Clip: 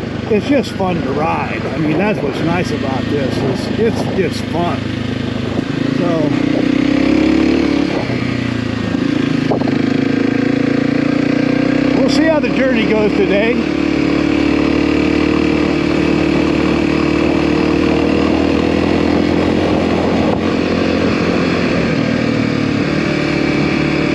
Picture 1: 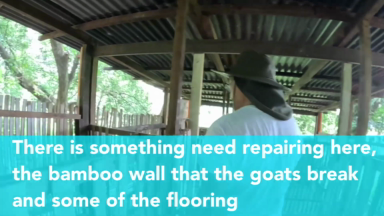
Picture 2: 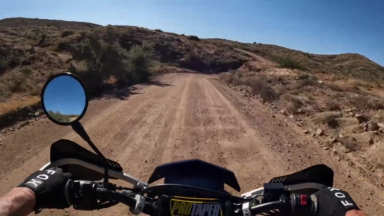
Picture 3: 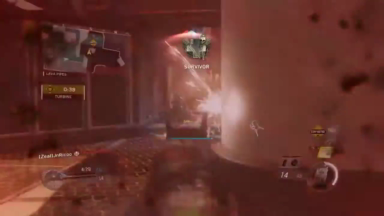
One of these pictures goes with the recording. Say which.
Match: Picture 2